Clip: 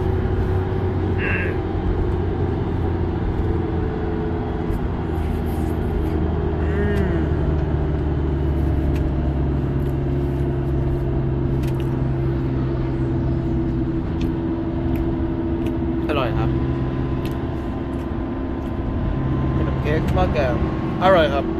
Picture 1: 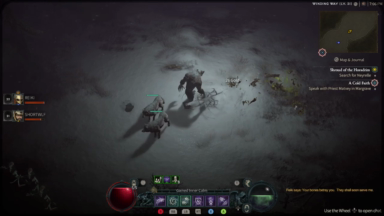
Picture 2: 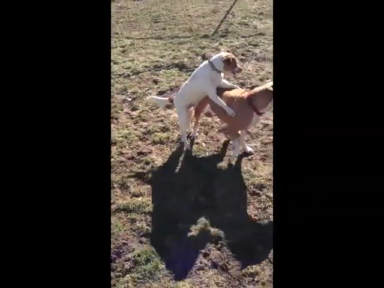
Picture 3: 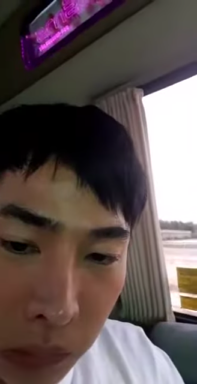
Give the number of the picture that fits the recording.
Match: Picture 3